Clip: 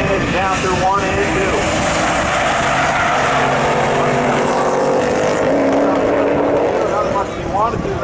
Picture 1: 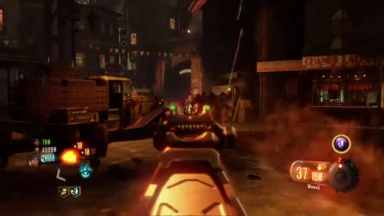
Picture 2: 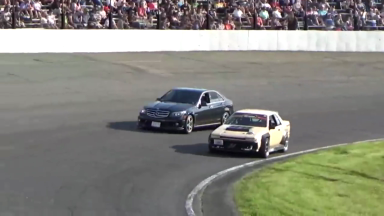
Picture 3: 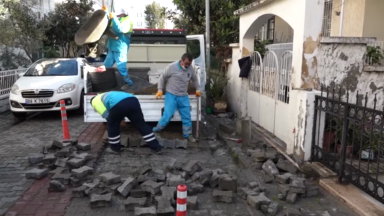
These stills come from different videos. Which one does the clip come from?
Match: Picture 2